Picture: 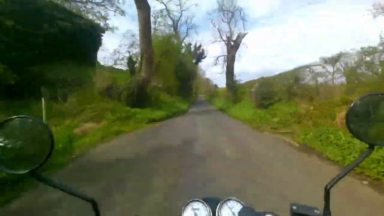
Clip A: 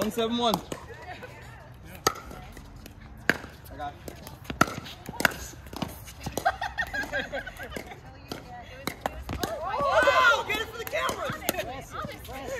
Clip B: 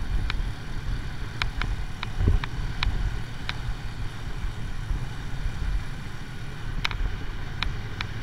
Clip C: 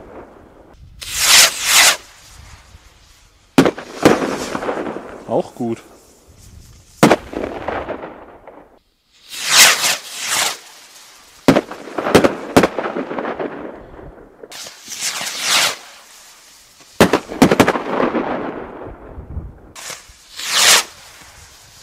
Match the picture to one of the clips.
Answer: B